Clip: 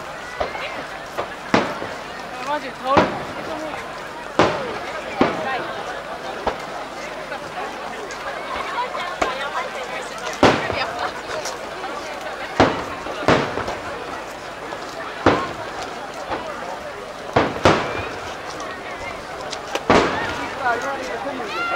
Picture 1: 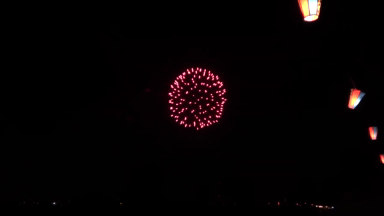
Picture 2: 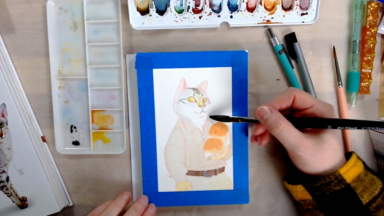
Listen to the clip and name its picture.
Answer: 1